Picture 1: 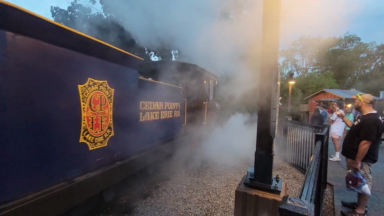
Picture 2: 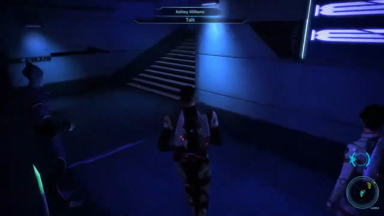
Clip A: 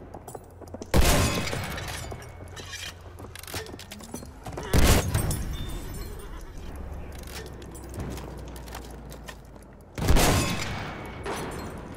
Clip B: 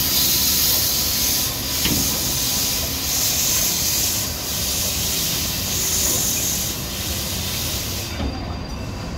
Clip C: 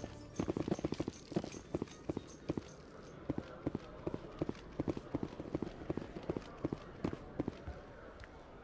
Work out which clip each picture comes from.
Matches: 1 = B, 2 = C